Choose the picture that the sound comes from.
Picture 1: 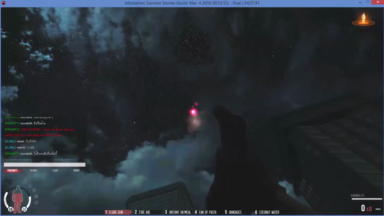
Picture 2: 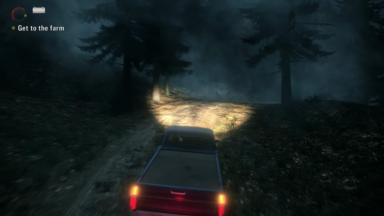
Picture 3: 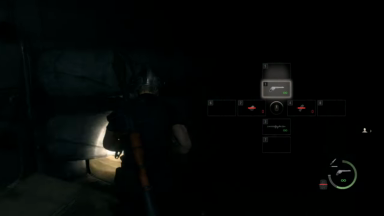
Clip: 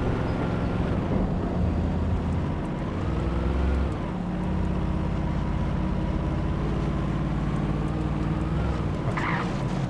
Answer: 2